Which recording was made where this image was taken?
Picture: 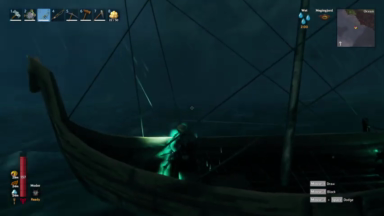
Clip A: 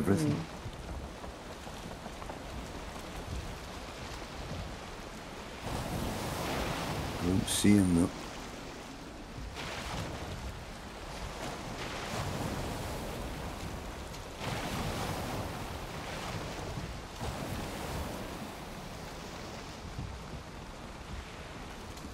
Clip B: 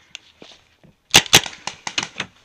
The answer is A